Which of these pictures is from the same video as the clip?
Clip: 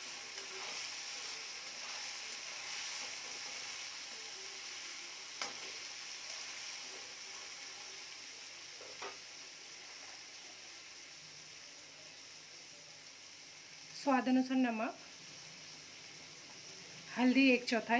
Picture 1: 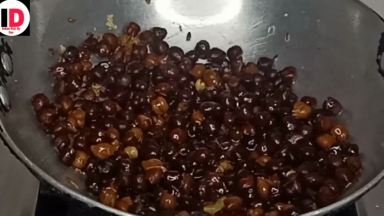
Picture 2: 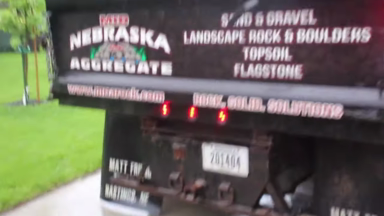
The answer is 1